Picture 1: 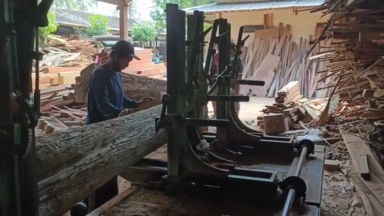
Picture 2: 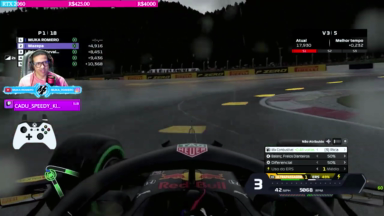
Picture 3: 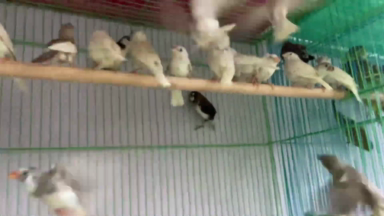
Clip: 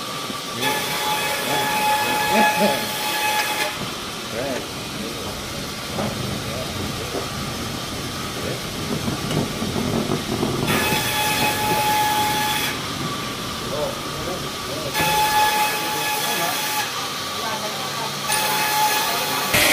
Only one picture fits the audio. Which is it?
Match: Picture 1